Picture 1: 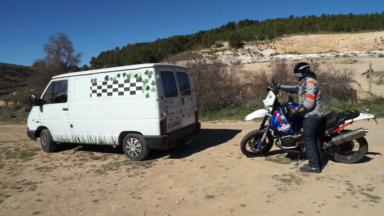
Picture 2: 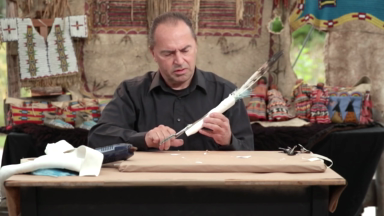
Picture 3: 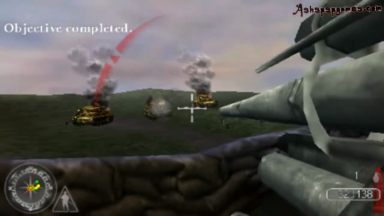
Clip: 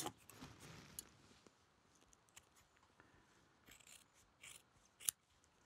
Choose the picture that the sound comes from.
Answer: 2